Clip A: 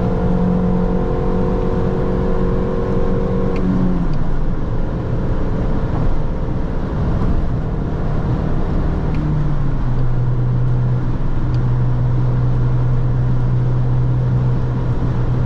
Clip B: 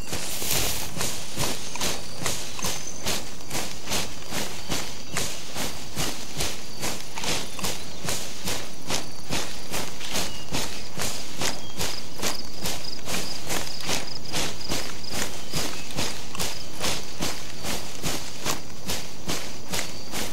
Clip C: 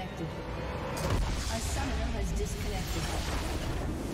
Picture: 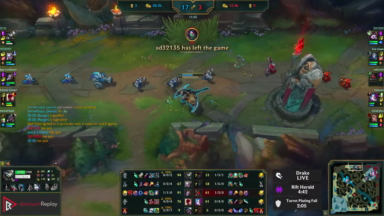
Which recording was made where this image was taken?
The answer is C